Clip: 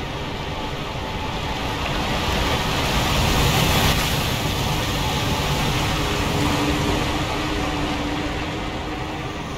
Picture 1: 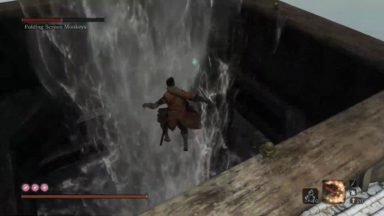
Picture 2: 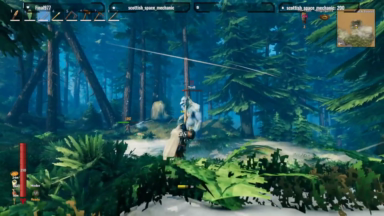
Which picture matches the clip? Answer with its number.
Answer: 1